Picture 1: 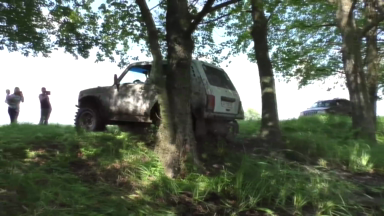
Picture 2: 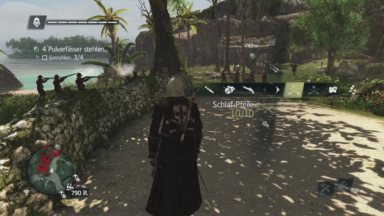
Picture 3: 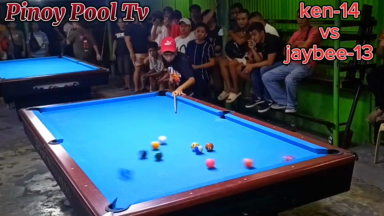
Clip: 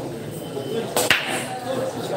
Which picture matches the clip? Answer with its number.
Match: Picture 3